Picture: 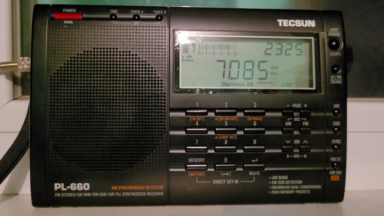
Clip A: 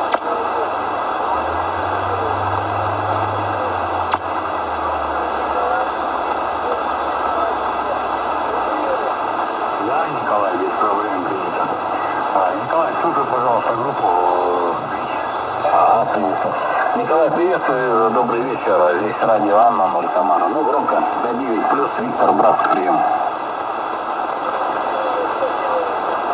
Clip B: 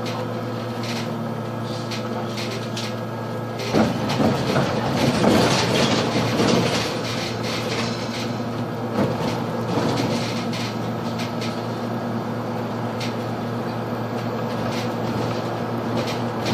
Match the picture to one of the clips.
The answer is A